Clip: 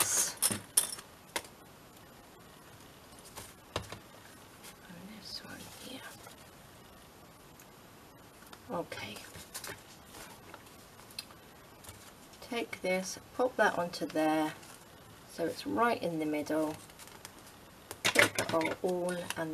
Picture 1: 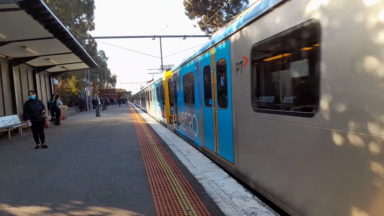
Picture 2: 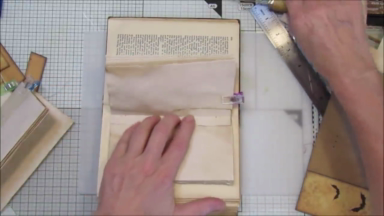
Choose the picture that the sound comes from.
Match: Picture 2